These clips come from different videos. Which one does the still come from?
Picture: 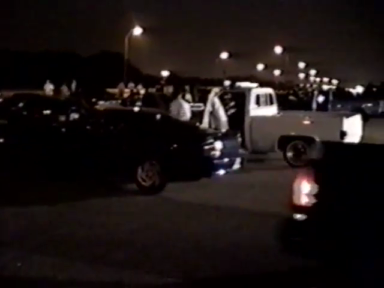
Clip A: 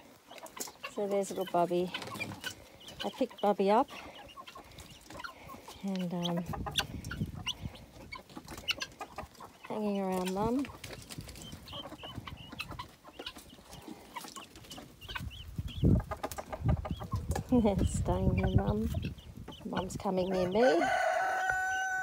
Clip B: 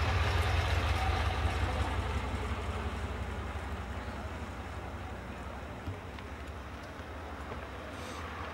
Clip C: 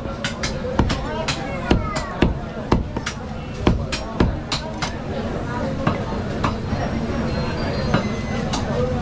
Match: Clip B